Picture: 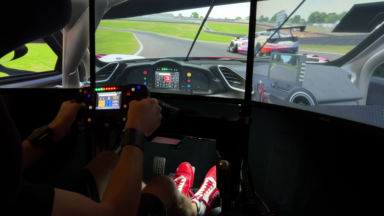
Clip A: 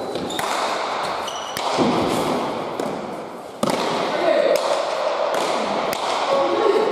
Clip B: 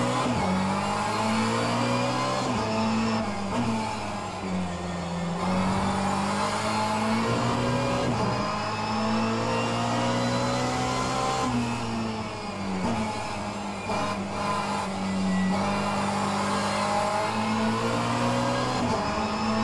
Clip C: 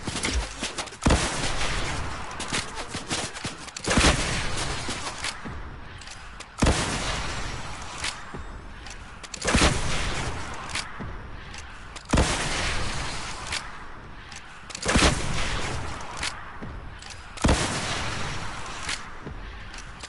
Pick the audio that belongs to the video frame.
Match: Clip B